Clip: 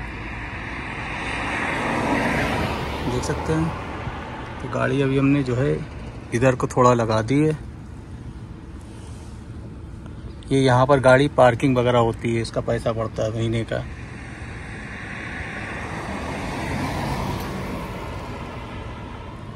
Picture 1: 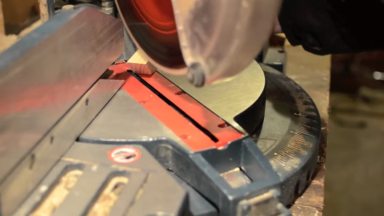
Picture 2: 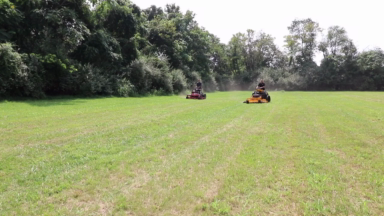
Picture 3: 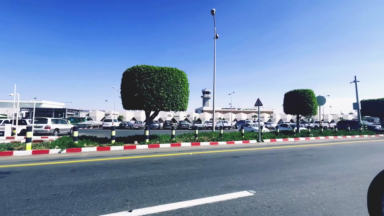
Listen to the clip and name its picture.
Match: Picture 3